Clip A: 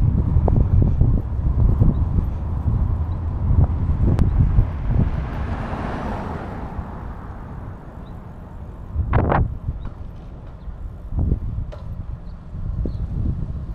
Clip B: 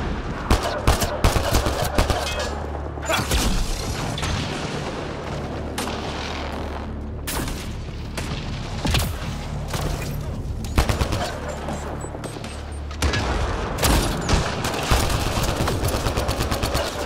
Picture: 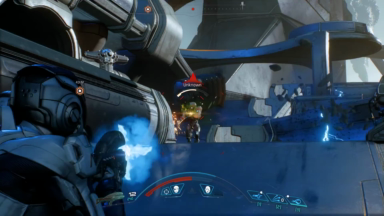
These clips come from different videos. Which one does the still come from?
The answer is B